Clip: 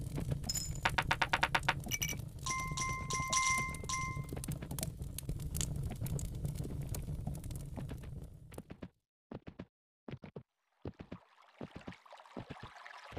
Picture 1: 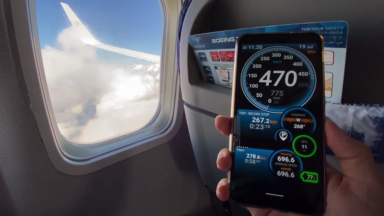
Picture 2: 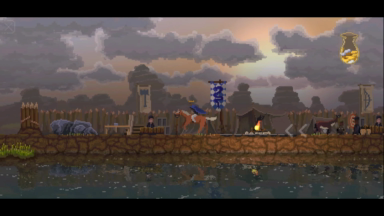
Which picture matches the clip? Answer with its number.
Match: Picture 2